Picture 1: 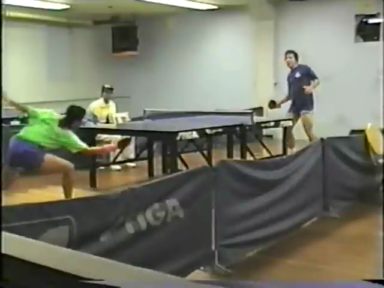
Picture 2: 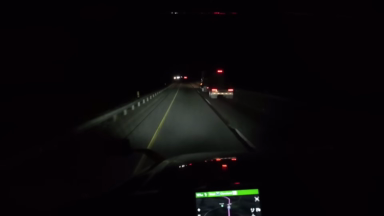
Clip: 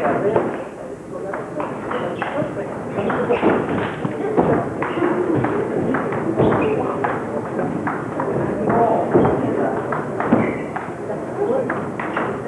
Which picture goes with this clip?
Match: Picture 1